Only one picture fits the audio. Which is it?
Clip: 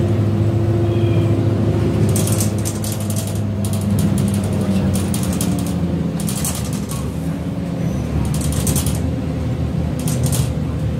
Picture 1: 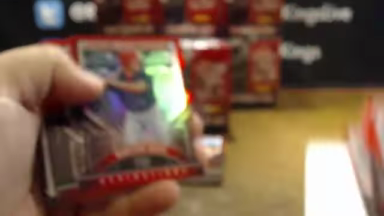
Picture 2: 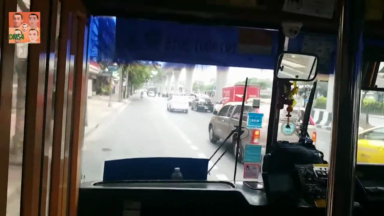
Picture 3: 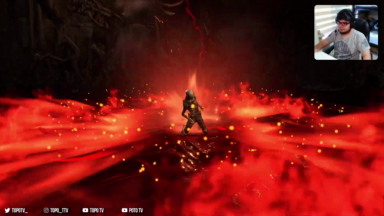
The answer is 2